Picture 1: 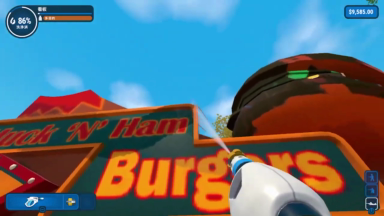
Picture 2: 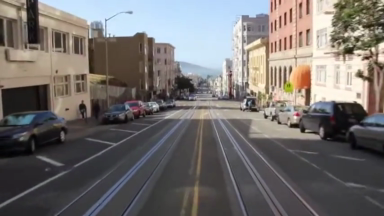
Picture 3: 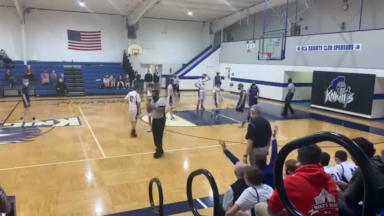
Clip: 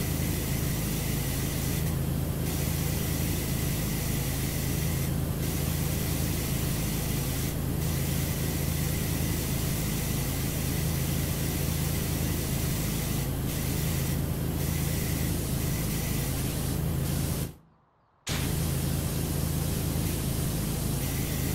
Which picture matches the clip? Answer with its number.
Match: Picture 1